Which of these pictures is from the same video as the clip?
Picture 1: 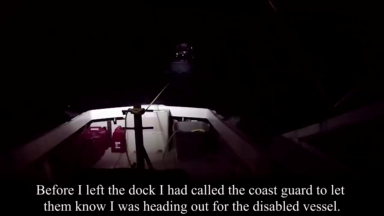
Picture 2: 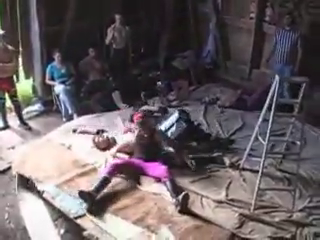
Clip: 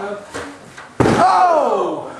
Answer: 2